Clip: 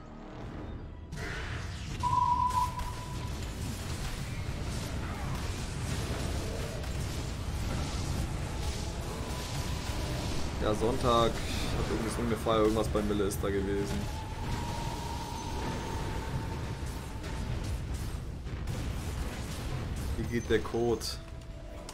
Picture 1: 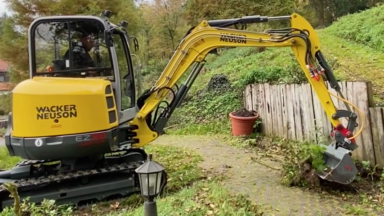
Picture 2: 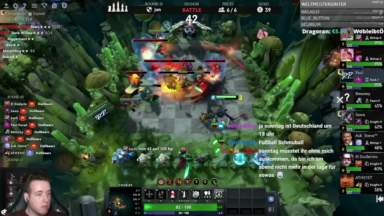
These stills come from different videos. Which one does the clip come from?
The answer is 2